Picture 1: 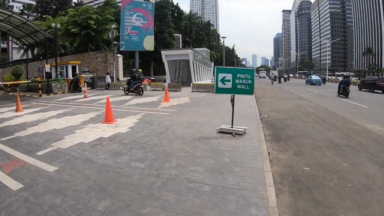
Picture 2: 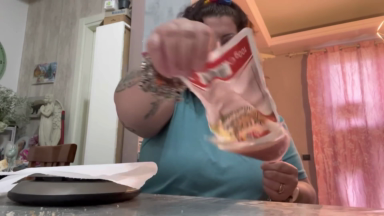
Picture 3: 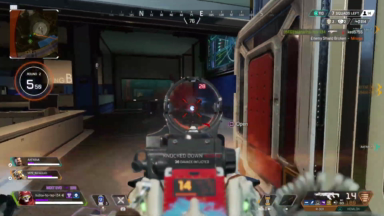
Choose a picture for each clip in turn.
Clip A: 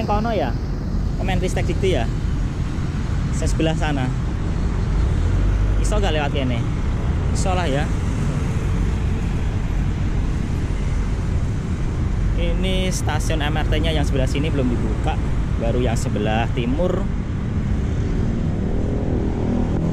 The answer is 1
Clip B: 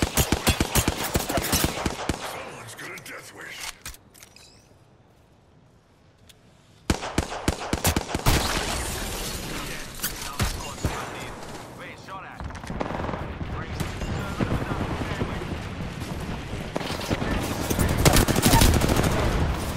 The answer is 3